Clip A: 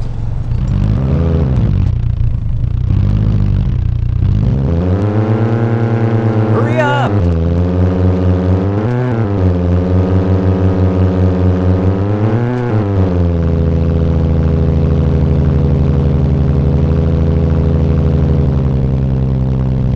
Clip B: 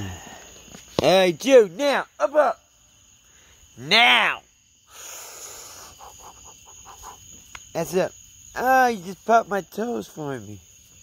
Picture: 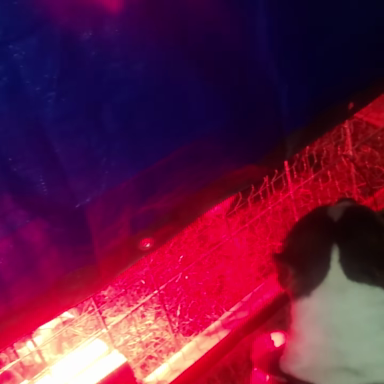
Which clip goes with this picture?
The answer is B